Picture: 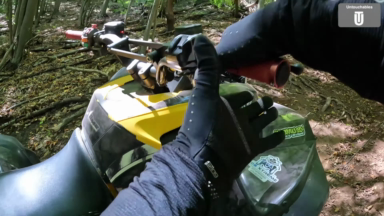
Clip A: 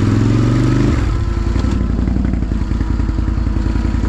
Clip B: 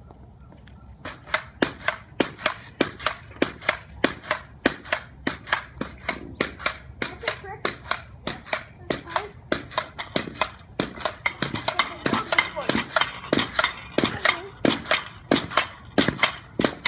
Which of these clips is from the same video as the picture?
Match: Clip A